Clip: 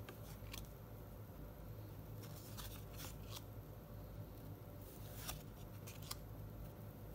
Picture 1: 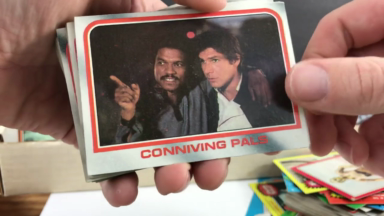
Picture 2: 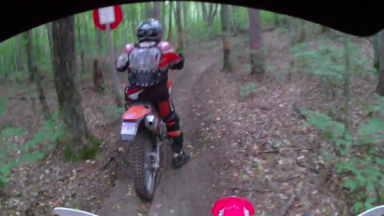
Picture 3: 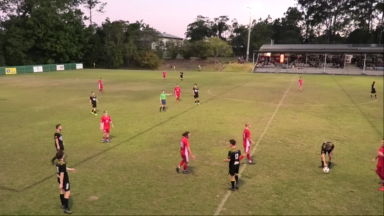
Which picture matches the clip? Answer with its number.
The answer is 1